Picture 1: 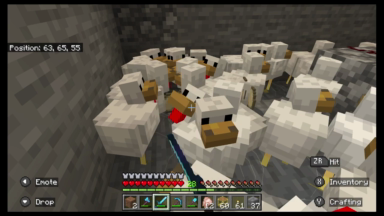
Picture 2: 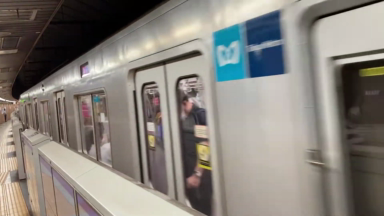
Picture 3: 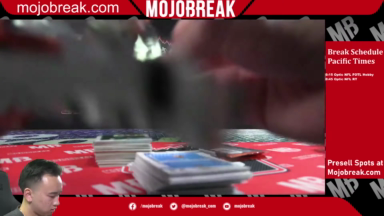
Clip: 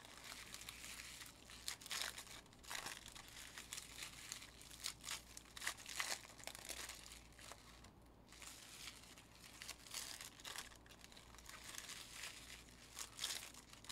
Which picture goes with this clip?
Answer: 3